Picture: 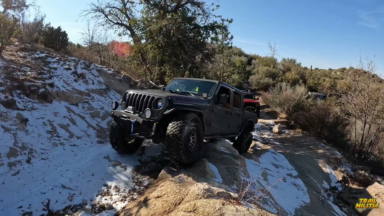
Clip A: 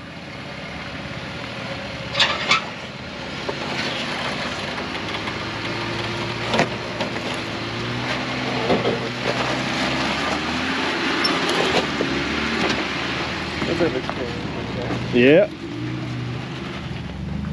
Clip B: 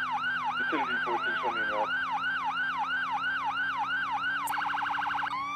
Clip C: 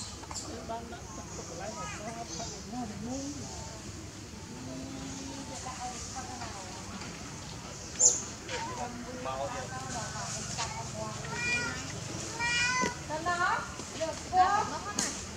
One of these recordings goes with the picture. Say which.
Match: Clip A